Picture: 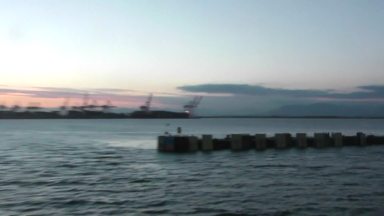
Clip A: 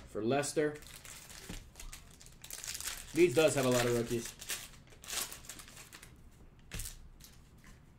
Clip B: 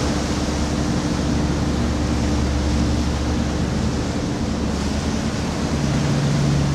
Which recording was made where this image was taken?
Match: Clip B